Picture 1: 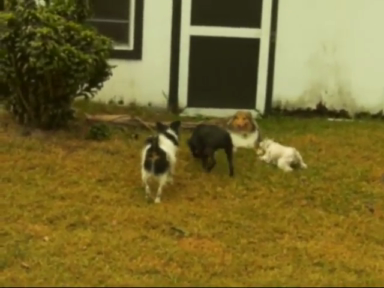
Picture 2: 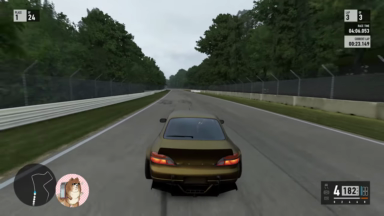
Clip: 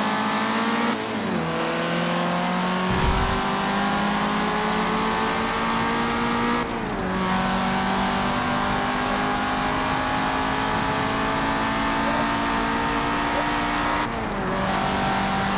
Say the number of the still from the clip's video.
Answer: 2